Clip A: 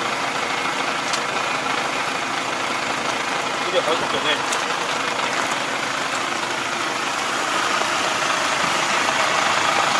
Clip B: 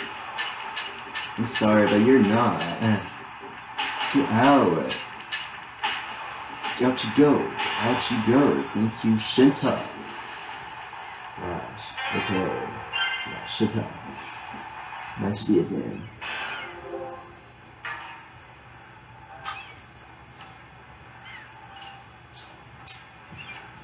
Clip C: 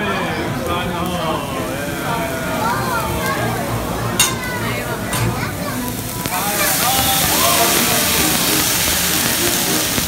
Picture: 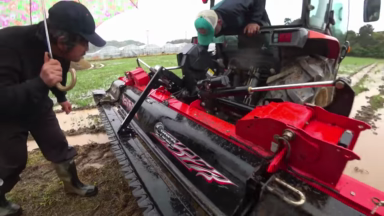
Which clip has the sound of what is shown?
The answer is A